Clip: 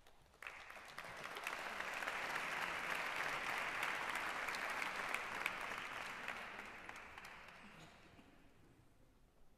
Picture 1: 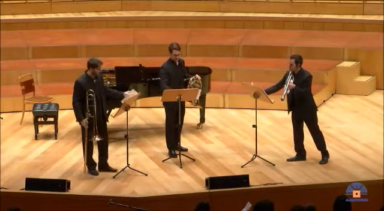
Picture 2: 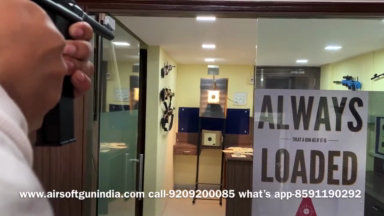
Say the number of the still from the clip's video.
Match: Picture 1